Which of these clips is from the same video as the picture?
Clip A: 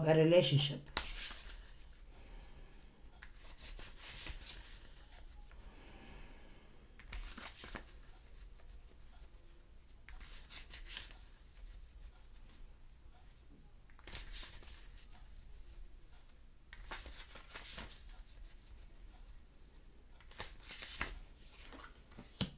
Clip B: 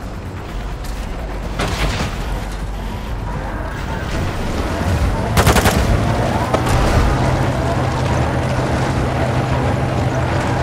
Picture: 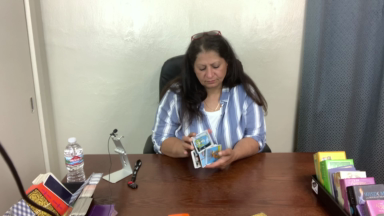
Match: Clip A